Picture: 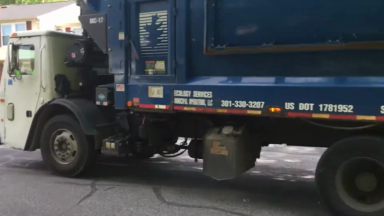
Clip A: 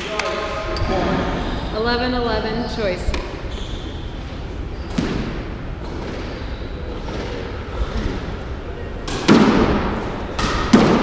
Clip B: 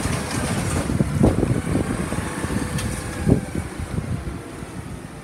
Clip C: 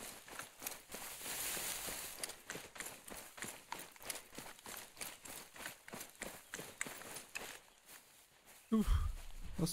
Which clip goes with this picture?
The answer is B